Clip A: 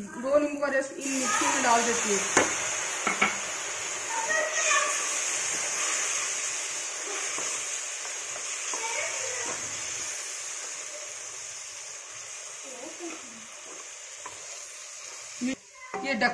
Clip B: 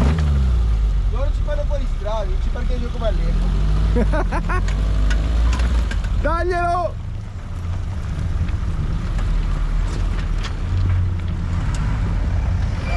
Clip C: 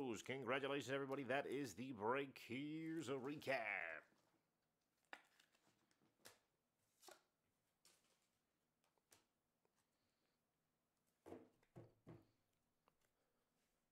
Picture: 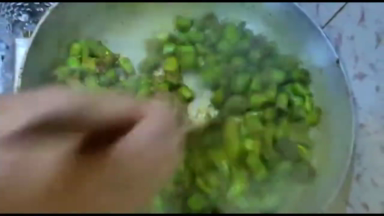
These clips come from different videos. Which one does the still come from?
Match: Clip A